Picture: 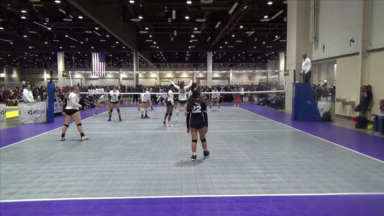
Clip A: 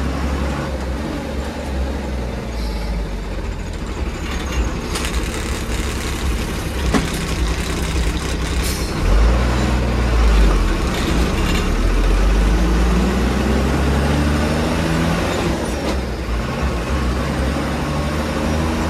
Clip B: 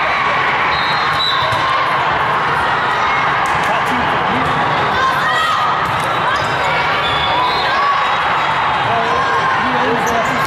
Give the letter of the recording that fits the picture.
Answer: B